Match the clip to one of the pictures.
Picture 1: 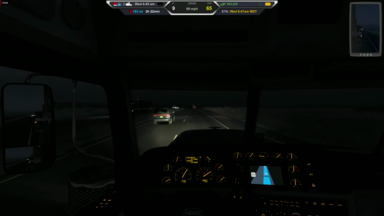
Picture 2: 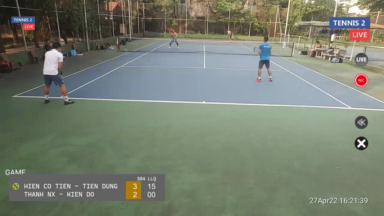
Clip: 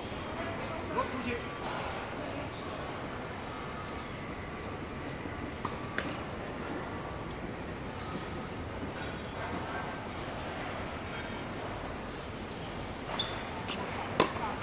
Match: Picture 2